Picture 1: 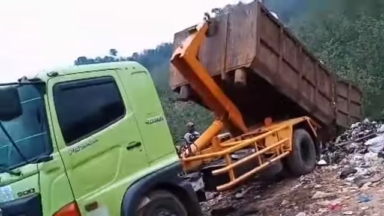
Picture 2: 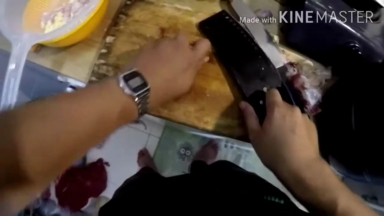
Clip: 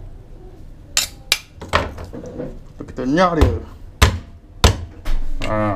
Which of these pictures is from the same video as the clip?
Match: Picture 2